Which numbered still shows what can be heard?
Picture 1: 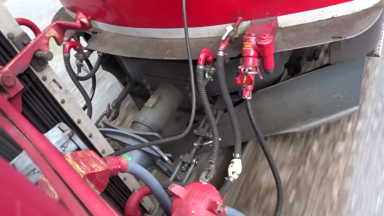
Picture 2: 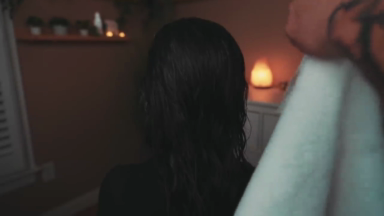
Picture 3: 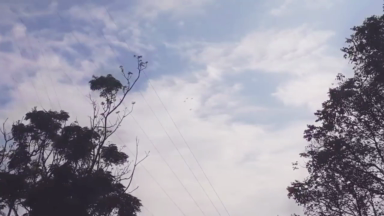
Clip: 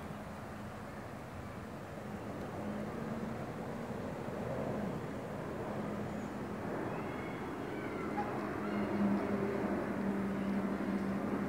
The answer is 3